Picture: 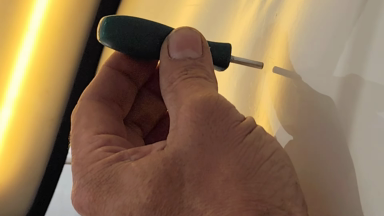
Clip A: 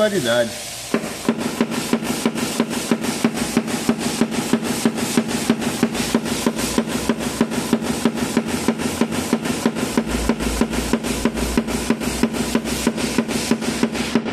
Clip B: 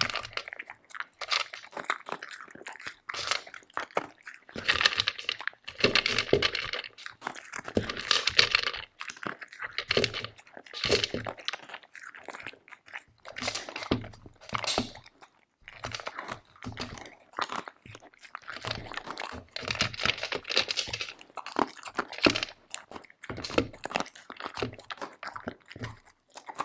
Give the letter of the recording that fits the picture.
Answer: A